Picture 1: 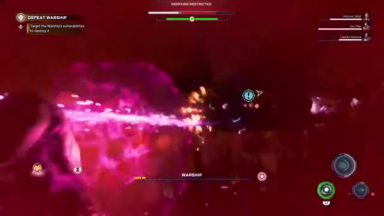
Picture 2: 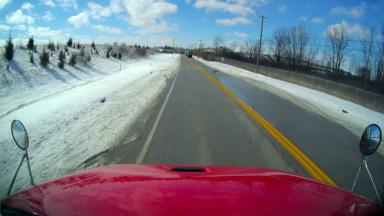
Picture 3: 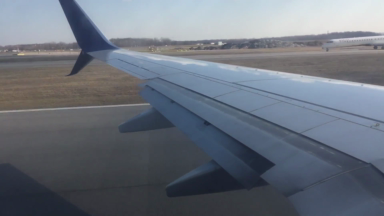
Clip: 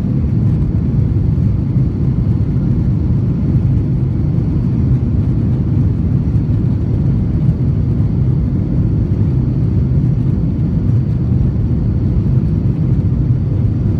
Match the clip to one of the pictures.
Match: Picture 3